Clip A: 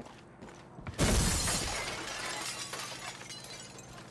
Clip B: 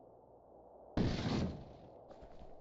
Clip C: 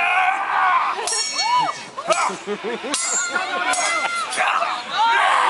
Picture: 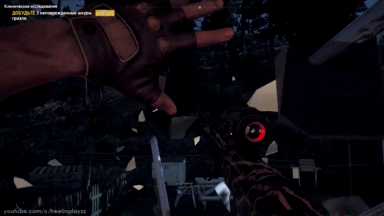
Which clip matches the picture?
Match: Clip A